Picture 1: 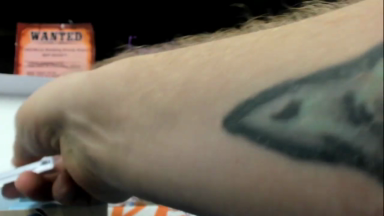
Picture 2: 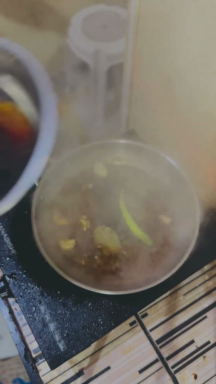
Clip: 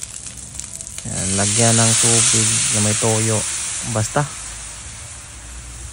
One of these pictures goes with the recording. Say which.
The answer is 2